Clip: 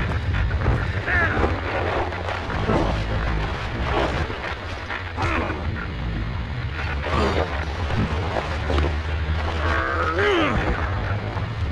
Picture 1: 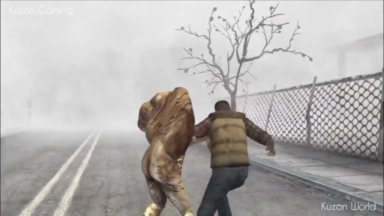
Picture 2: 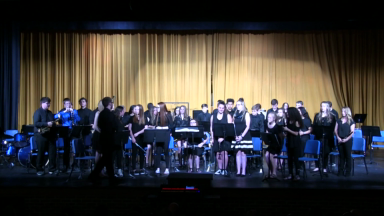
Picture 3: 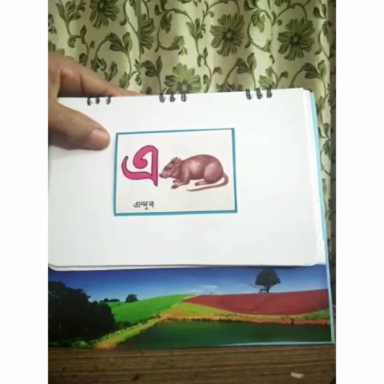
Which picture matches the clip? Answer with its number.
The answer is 1